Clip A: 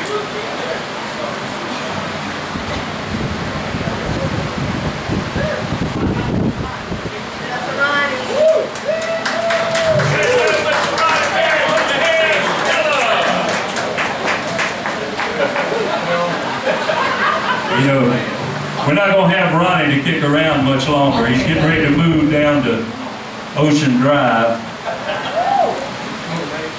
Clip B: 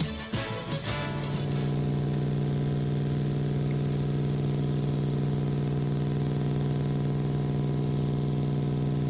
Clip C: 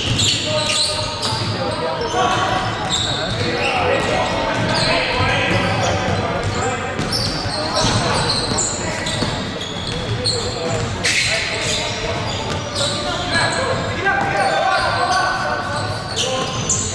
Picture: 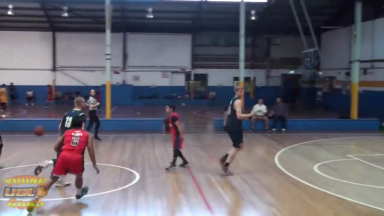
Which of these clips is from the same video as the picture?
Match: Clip C